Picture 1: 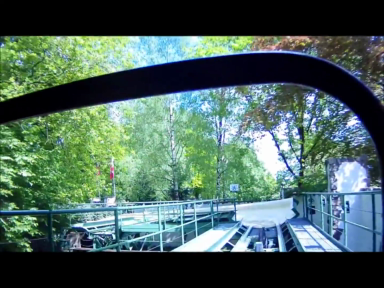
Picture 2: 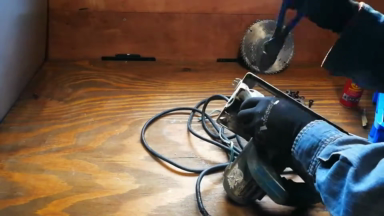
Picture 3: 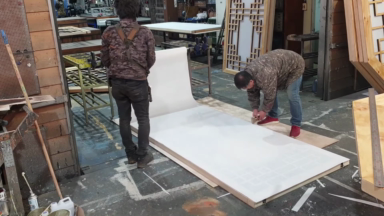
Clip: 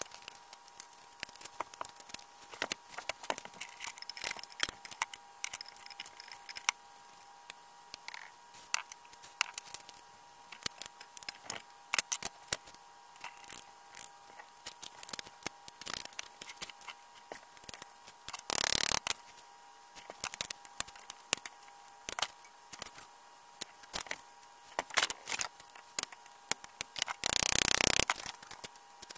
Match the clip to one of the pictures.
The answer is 2